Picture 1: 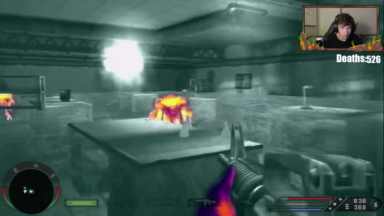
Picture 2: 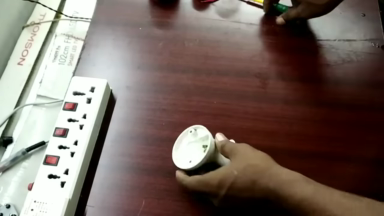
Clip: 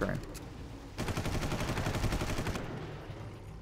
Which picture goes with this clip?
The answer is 1